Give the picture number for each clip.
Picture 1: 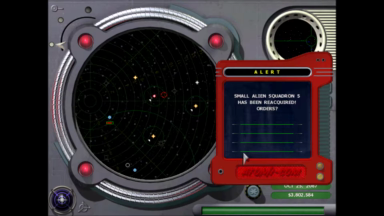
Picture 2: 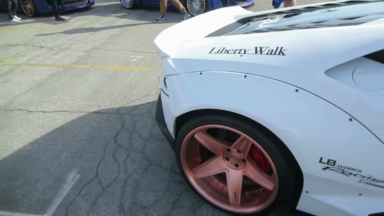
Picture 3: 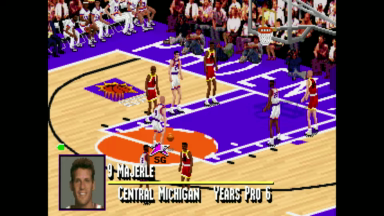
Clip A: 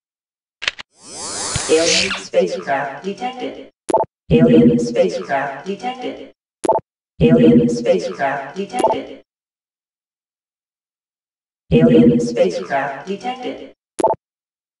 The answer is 1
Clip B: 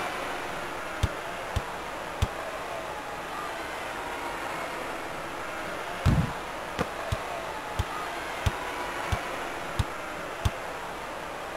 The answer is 3